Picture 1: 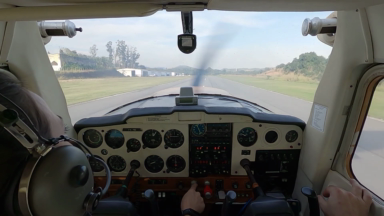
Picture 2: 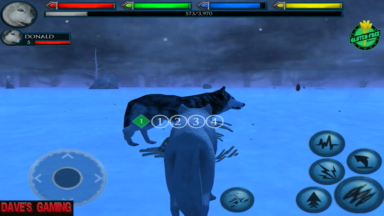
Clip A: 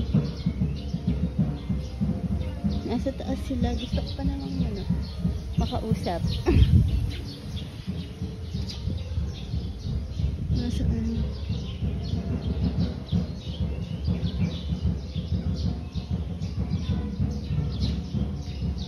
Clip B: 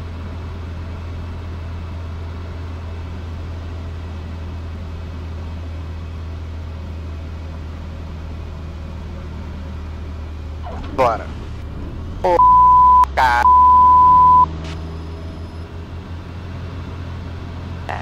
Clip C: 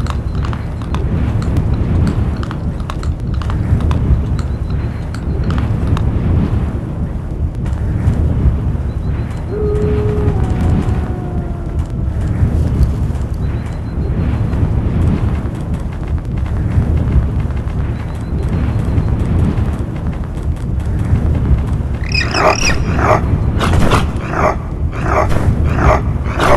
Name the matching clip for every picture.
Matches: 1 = B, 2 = C